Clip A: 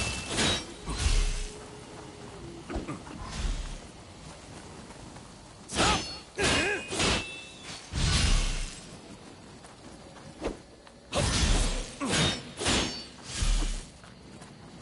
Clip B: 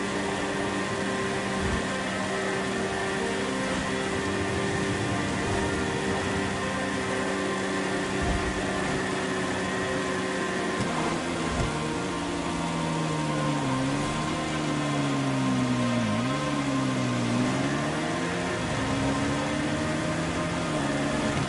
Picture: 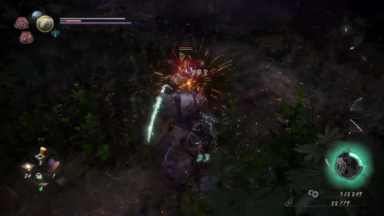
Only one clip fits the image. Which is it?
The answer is A